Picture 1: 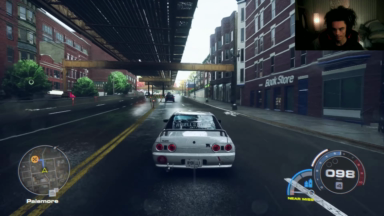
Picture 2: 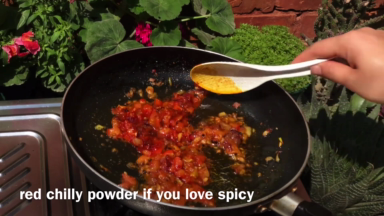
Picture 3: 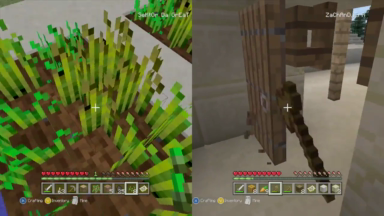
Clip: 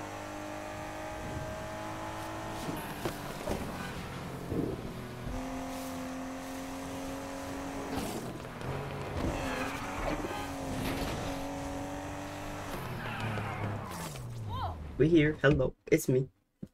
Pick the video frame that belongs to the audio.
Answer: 1